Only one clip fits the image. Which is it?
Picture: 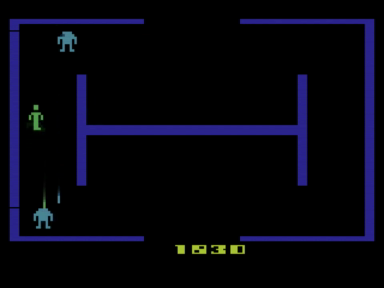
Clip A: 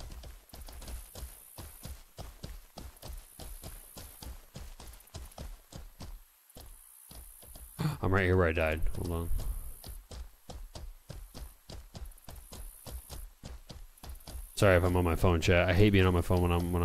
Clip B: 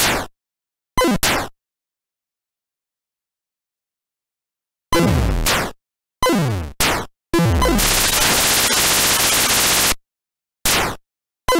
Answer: B